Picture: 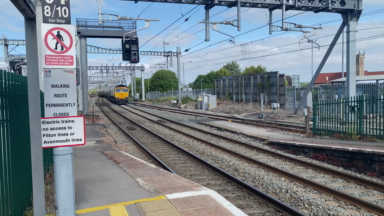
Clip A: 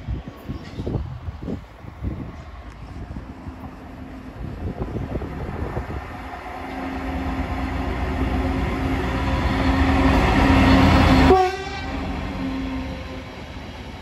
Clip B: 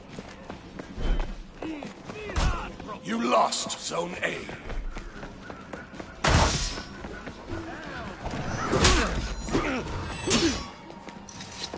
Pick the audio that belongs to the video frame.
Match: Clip A